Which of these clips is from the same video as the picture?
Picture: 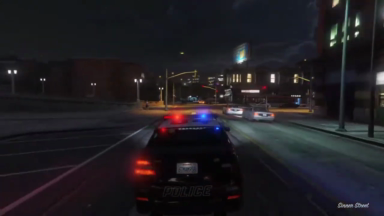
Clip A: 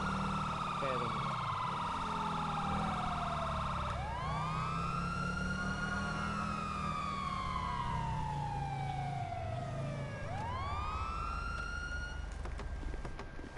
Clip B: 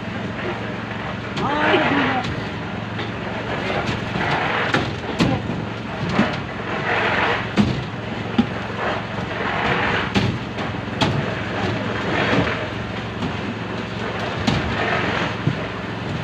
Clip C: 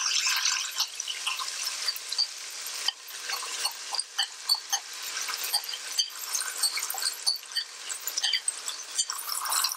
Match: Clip A